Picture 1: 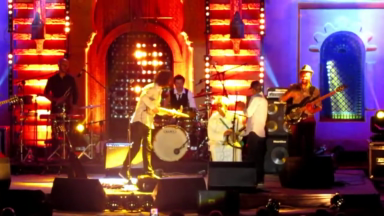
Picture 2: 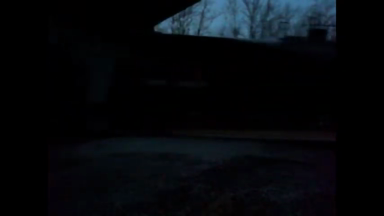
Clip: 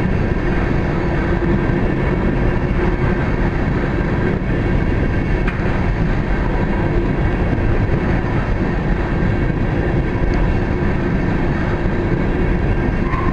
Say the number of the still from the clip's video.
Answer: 2